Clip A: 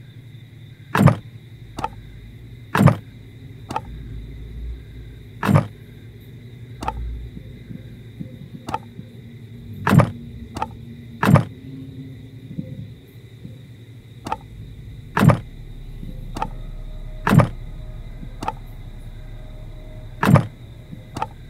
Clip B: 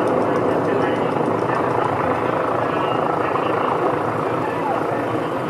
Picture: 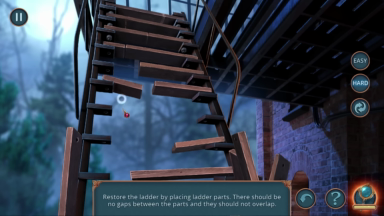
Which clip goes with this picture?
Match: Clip A